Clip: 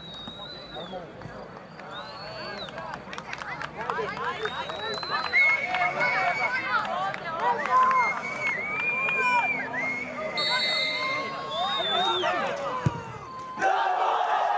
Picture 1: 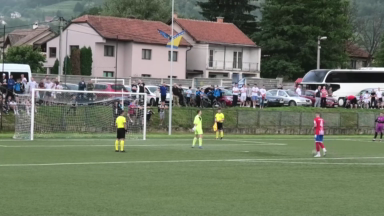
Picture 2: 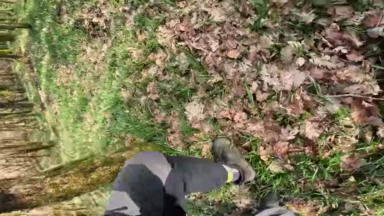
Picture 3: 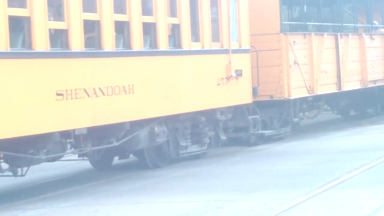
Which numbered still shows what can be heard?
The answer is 1